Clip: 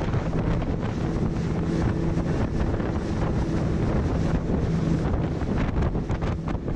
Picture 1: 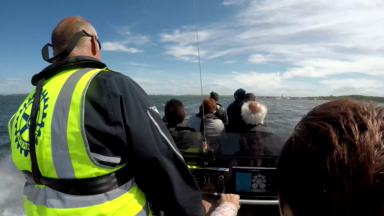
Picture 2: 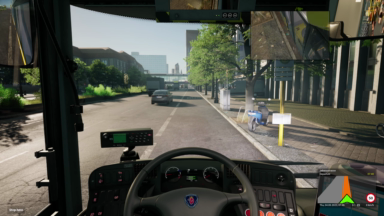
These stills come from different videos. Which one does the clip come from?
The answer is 1